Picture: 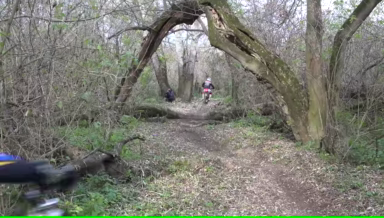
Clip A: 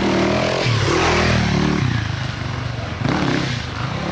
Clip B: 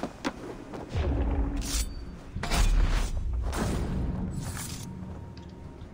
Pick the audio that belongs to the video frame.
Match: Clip A